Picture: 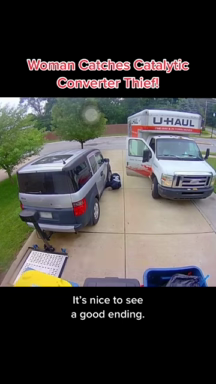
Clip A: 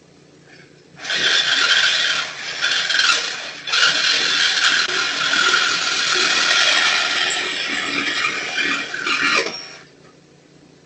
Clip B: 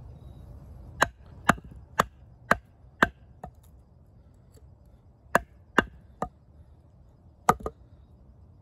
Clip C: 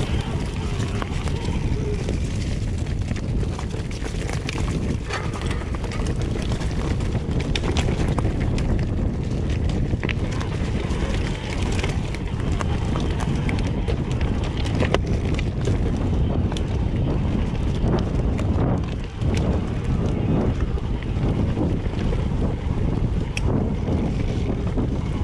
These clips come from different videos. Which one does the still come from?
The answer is A